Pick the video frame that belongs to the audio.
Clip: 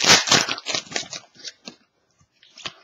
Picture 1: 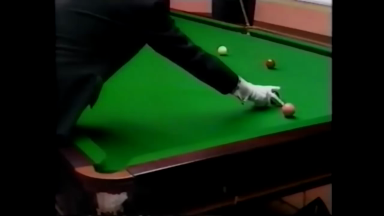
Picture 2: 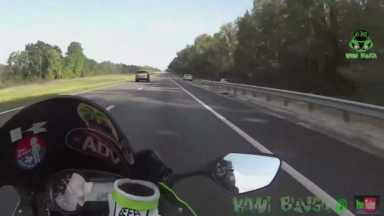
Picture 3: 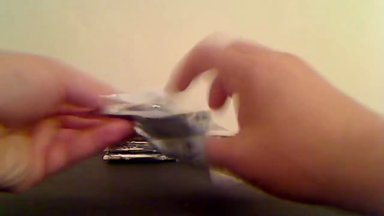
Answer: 3